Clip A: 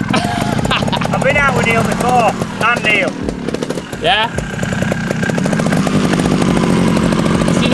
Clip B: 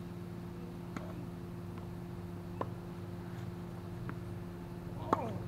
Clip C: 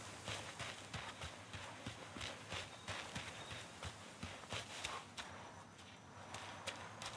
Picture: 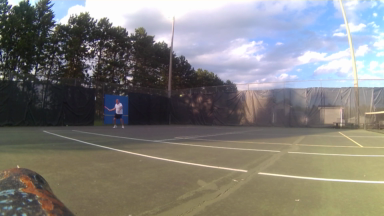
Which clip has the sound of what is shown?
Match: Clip B